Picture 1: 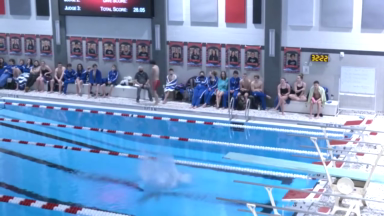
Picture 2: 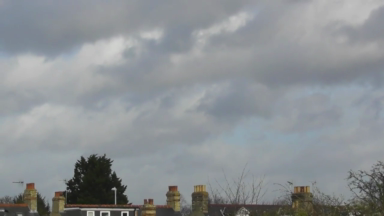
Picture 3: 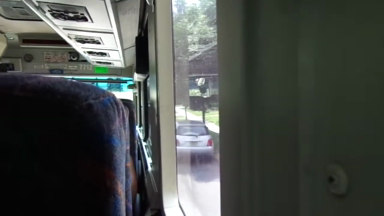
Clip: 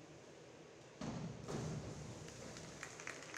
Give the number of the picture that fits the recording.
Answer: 1